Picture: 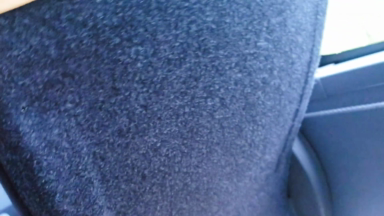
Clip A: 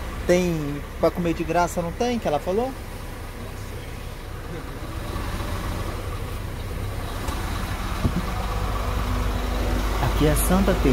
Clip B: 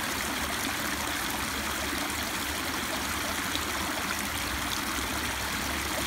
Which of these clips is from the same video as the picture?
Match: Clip A